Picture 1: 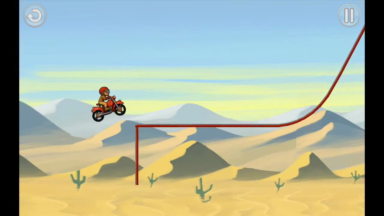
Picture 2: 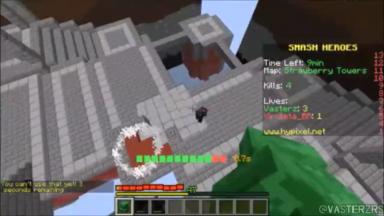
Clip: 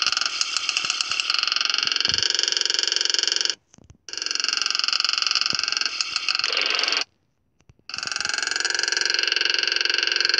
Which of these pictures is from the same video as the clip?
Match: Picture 1